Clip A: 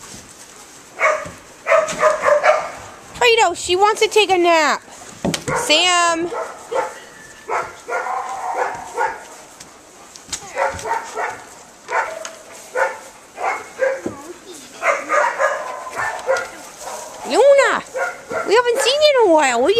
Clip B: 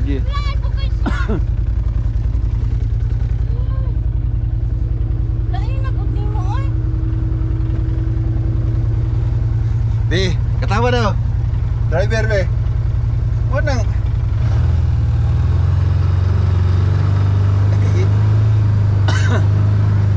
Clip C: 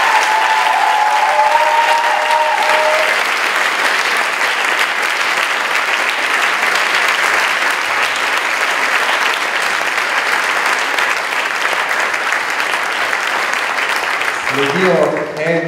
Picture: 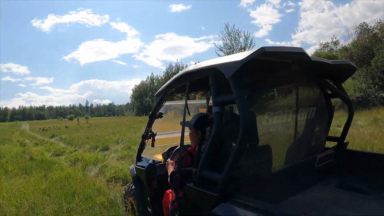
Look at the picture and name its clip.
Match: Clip B